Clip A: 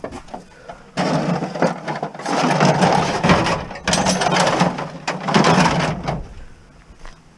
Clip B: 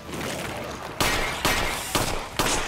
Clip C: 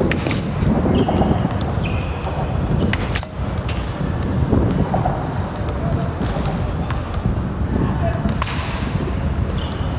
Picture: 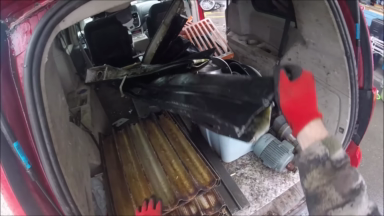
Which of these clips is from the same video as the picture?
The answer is A